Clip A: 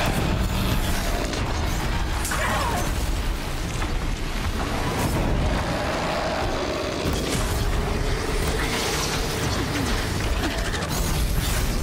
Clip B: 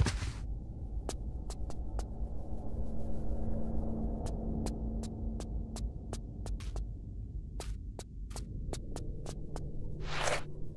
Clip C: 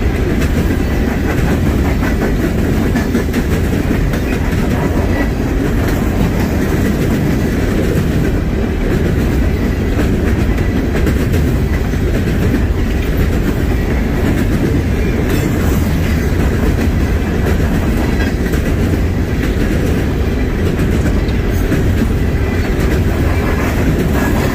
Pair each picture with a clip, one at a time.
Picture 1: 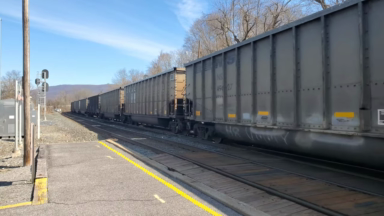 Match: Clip C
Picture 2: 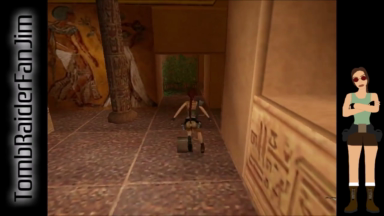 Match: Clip B